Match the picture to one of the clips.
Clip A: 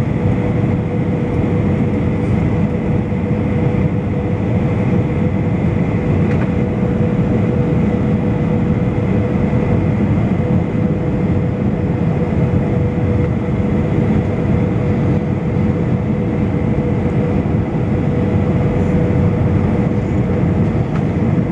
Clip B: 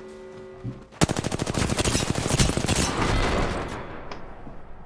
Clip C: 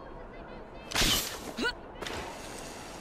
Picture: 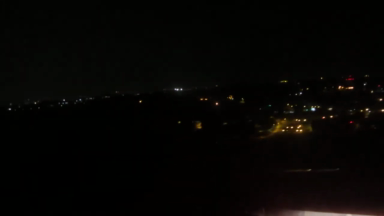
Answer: A